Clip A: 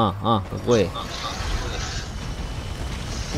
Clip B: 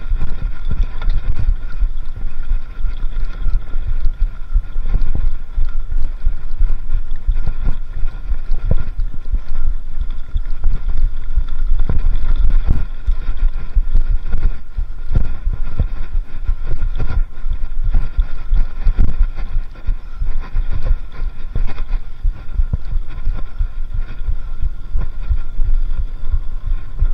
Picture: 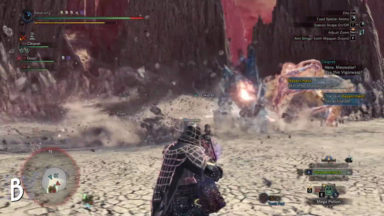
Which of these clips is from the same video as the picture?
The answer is A